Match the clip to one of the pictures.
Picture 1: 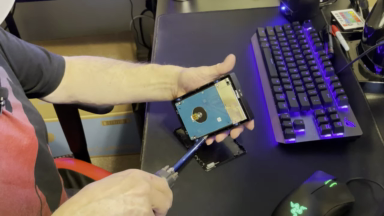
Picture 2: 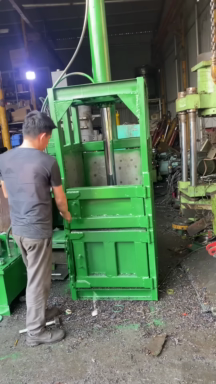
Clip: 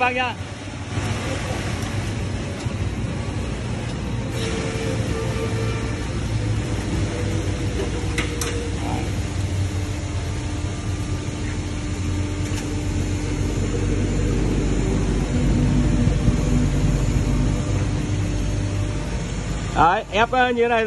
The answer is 2